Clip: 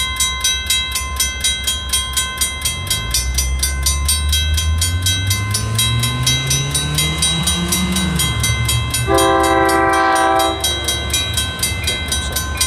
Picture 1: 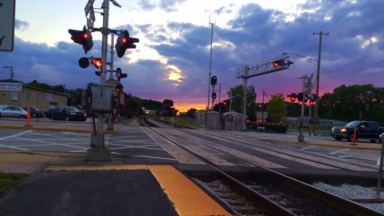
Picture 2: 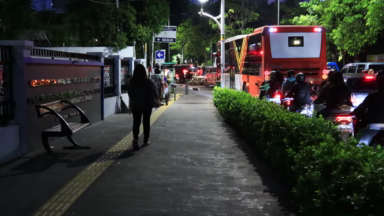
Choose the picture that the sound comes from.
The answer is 1